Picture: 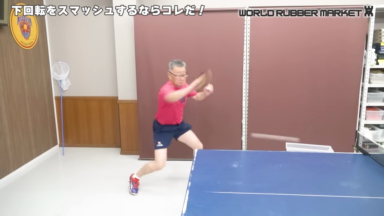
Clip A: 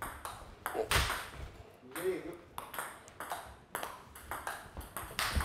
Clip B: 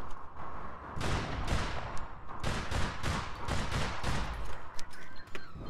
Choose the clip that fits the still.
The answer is A